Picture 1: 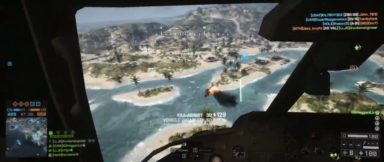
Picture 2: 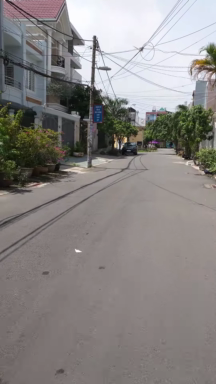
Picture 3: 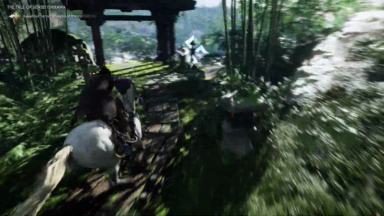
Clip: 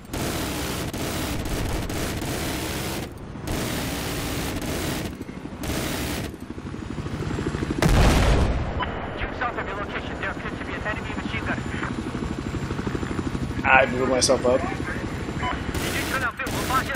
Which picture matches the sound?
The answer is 1